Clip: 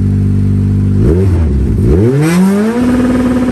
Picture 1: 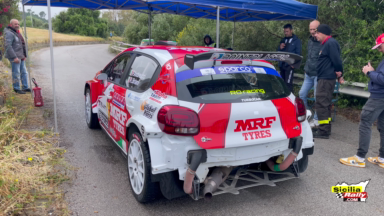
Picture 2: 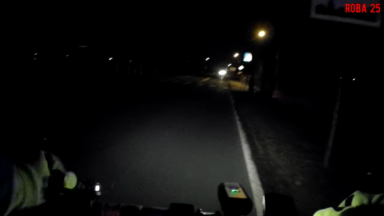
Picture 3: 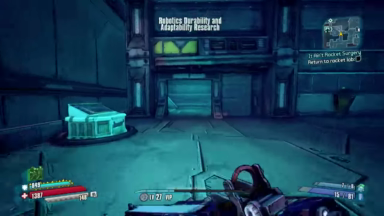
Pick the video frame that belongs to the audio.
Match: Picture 1